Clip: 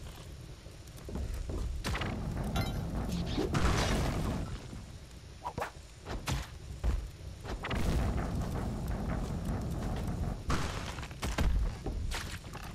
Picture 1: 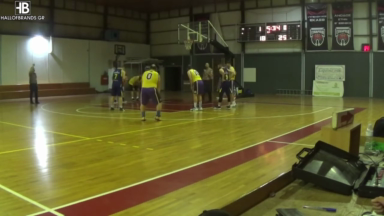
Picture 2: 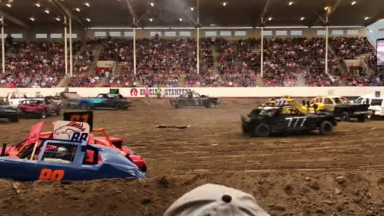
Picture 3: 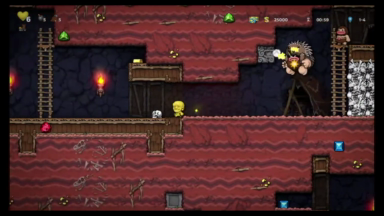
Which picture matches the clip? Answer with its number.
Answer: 3